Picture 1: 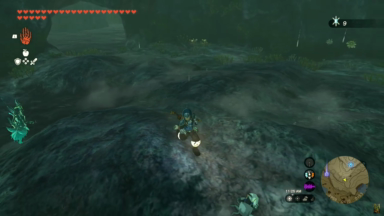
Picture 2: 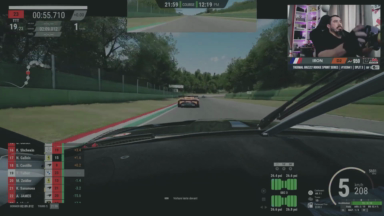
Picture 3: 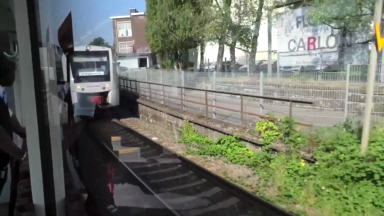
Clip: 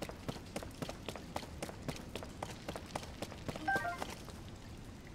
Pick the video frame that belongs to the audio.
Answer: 1